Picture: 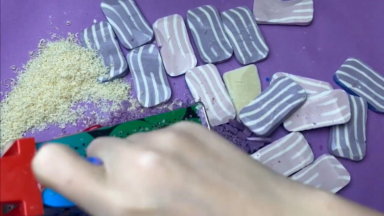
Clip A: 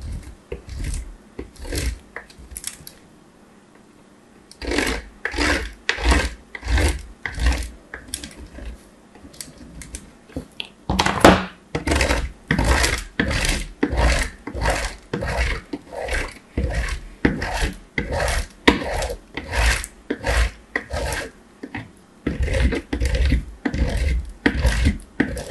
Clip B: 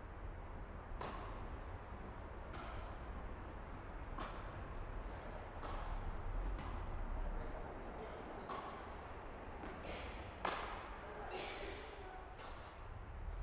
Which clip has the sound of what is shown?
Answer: A